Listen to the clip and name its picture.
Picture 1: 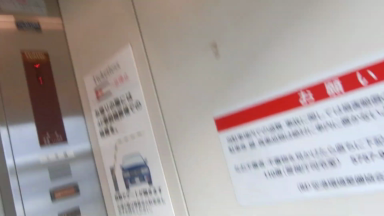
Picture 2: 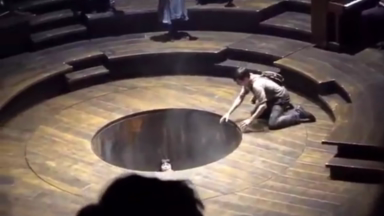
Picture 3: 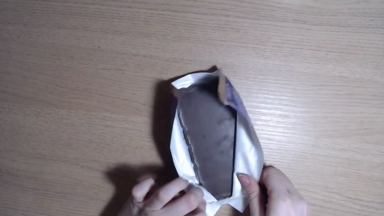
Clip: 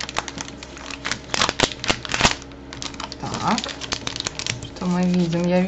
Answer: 3